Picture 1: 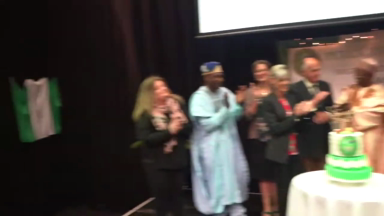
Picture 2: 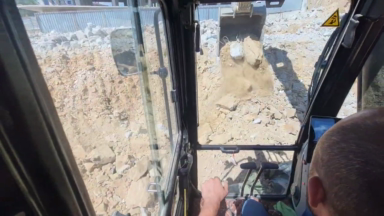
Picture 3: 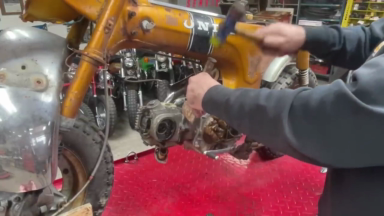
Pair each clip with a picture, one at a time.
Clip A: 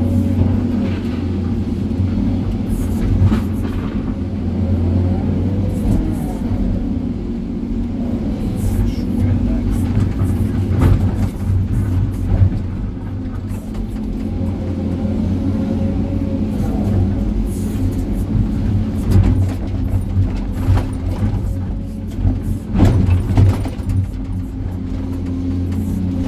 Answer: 2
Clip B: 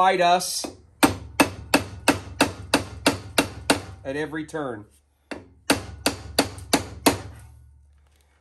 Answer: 3